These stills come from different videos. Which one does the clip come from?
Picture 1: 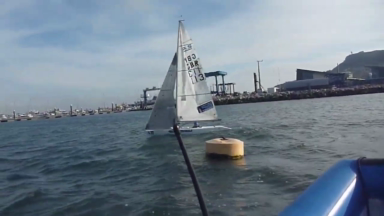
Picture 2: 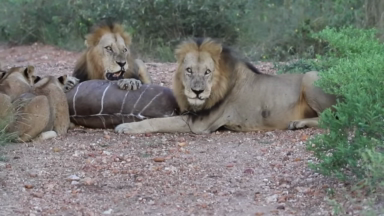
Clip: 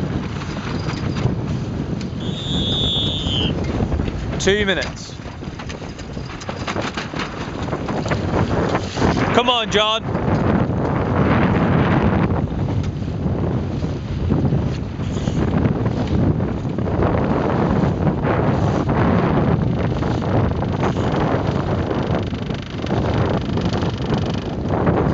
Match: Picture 1